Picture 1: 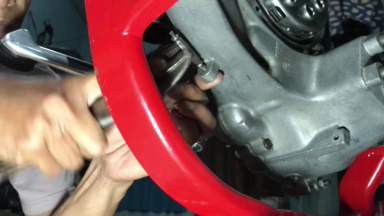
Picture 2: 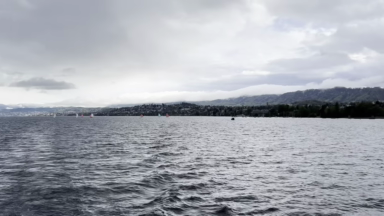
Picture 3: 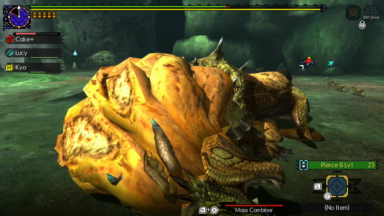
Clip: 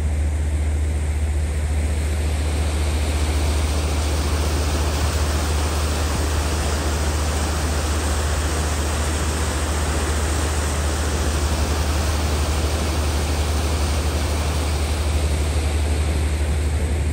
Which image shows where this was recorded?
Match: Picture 2